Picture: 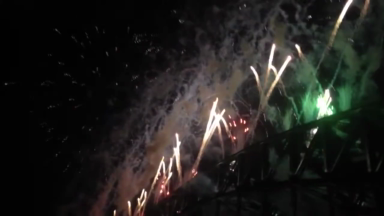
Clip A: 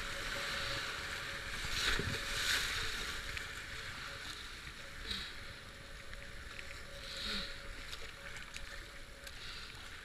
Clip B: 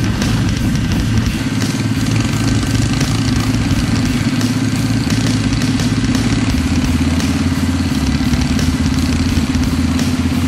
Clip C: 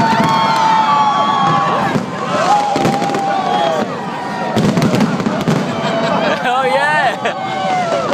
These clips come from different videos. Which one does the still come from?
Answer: C